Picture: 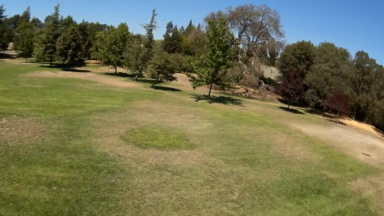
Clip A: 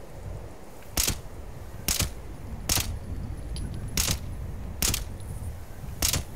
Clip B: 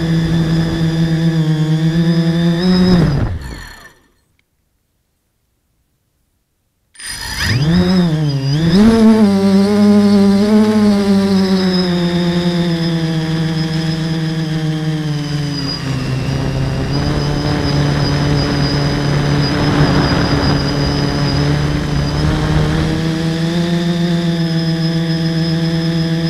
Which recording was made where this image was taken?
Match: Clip B